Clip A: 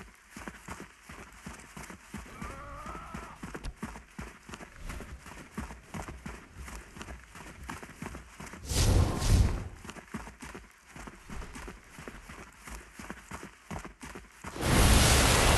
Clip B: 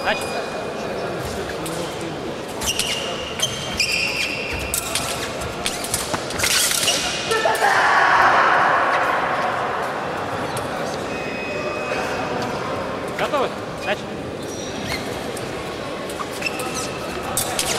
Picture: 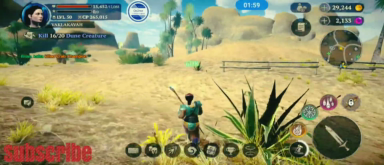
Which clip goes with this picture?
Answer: A